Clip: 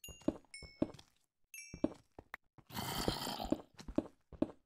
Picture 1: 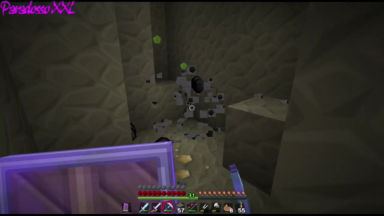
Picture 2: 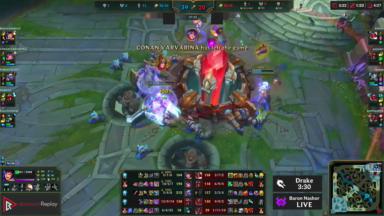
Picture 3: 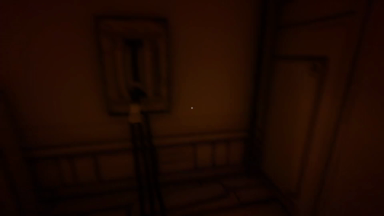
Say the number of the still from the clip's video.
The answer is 1